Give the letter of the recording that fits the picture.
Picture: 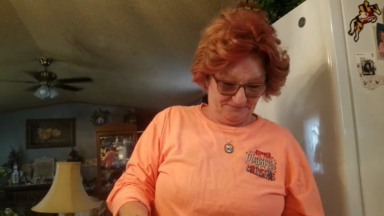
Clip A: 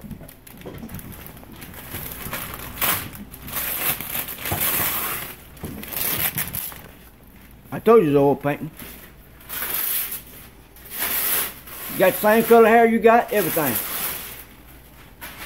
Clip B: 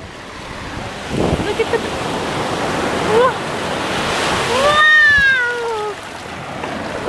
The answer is A